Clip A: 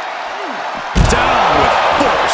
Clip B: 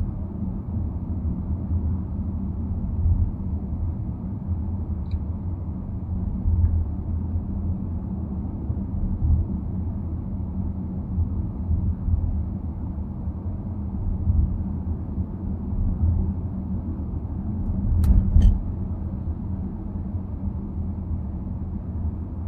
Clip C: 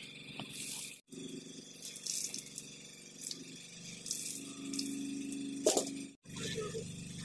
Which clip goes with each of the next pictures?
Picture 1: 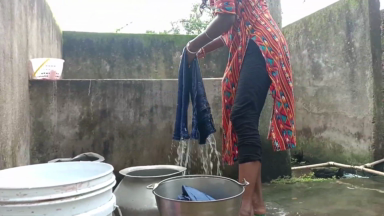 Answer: C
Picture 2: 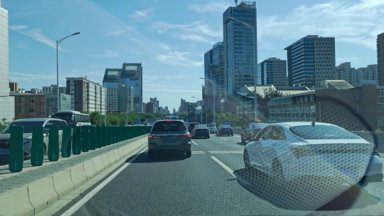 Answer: B